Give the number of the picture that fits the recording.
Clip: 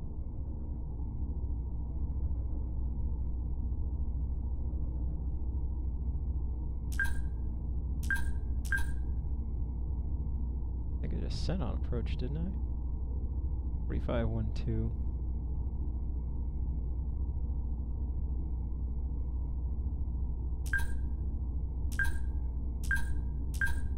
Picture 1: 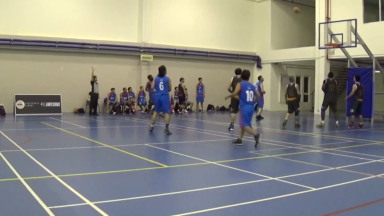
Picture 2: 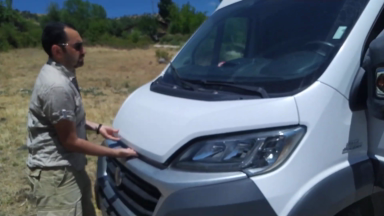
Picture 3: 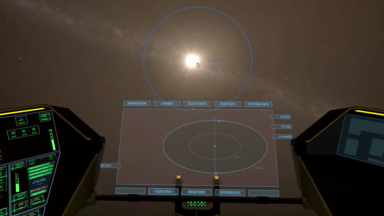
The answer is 3